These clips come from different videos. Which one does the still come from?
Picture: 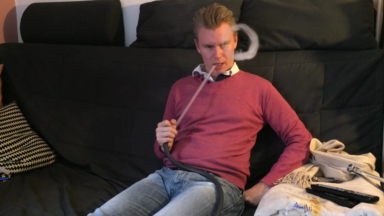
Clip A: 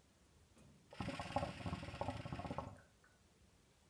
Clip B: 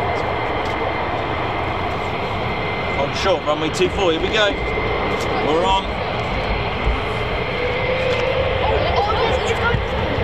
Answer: A